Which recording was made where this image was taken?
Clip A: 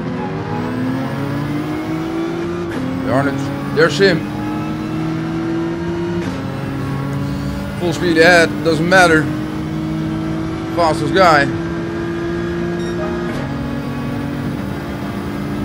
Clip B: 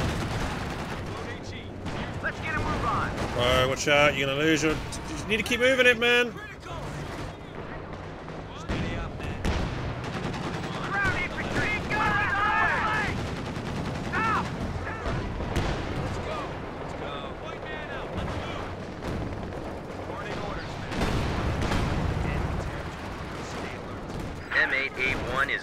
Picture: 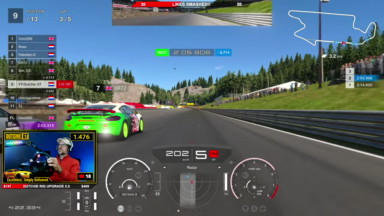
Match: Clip A